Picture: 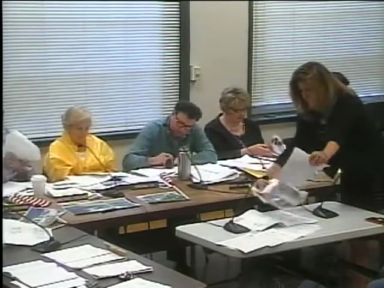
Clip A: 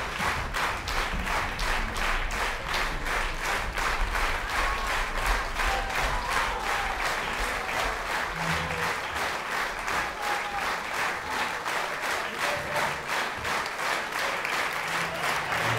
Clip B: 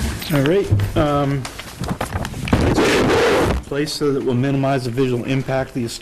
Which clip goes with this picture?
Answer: B